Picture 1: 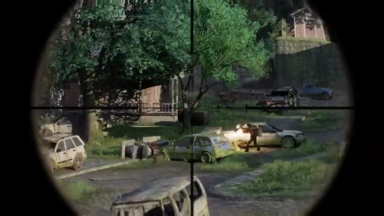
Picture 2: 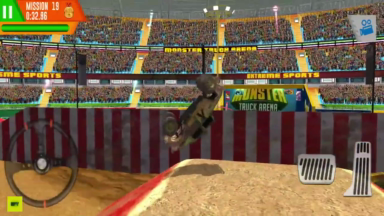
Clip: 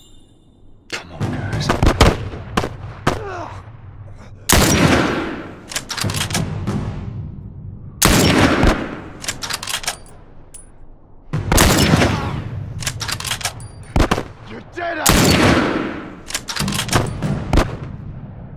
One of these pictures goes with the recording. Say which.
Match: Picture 1